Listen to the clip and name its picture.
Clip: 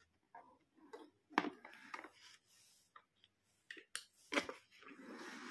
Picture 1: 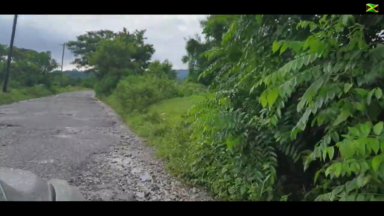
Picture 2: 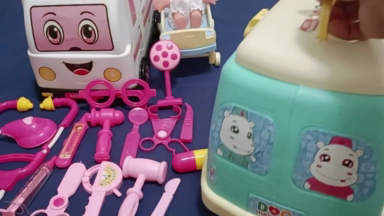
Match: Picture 2